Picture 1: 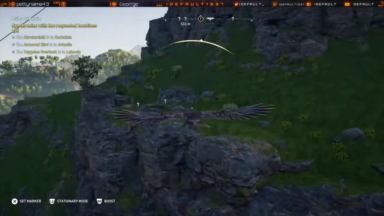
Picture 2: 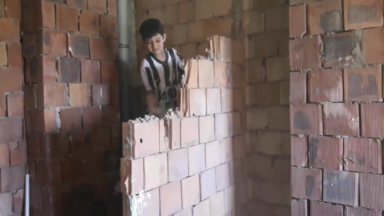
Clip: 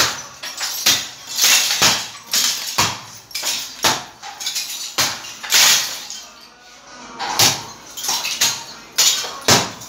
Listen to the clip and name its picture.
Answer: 2